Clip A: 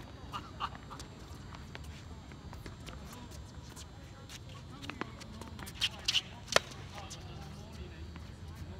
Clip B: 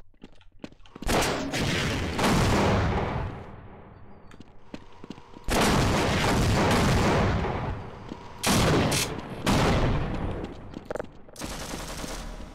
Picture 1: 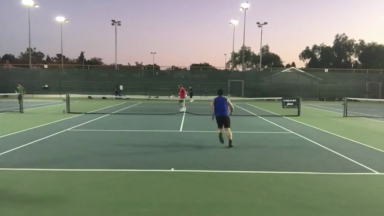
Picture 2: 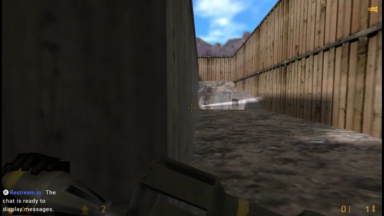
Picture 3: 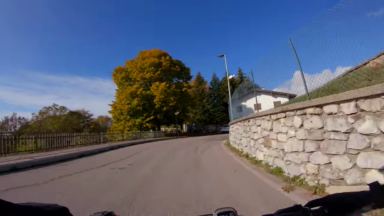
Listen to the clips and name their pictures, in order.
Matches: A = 1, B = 2